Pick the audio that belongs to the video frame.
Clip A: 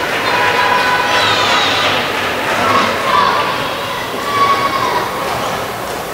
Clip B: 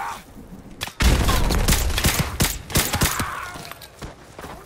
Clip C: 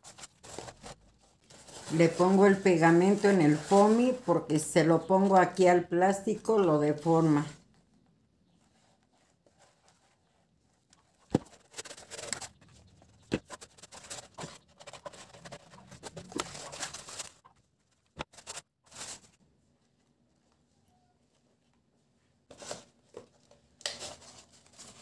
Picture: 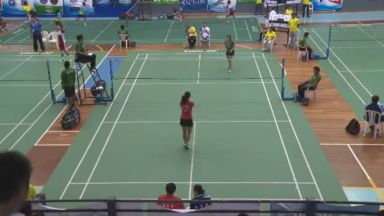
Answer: A